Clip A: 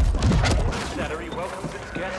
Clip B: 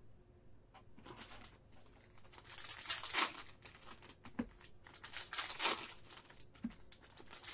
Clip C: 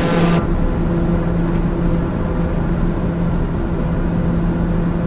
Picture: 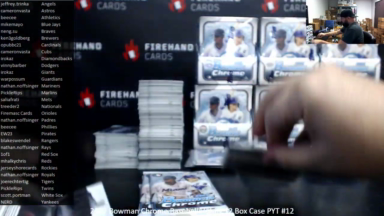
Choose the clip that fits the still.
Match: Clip B